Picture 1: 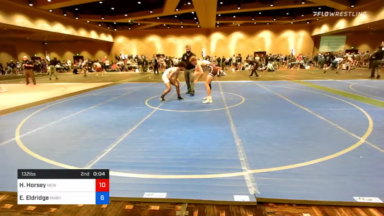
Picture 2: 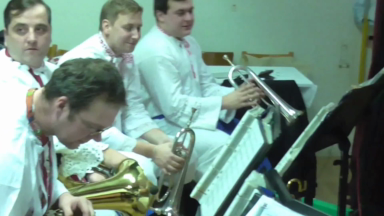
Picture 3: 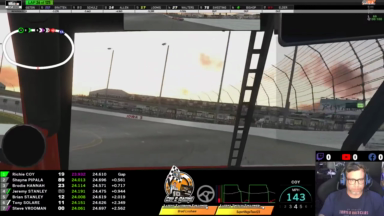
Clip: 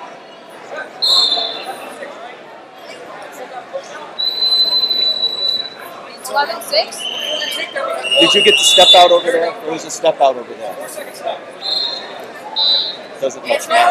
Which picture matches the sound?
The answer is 1